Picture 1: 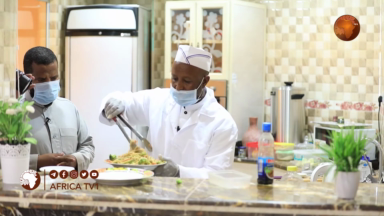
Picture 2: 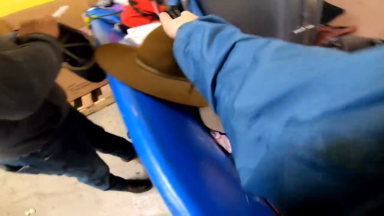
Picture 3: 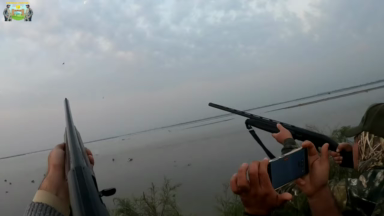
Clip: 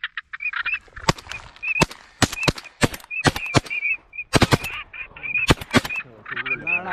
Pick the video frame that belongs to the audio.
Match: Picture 3